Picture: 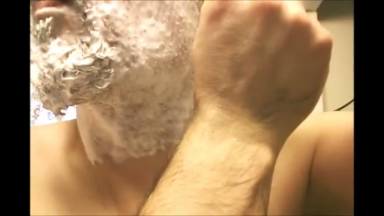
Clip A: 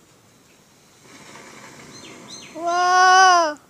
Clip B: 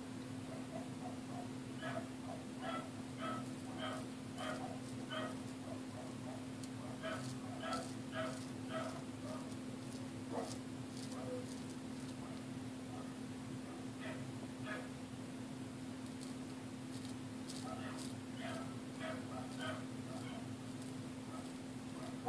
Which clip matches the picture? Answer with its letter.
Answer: B